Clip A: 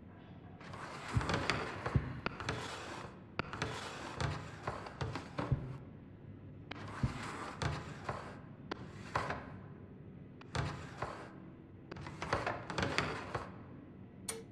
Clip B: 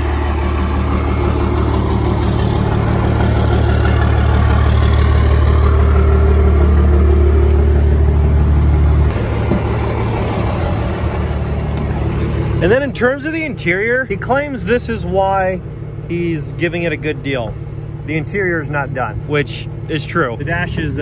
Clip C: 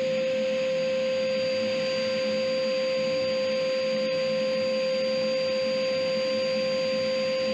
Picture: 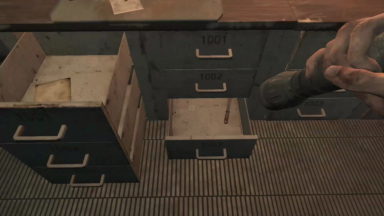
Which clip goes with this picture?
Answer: A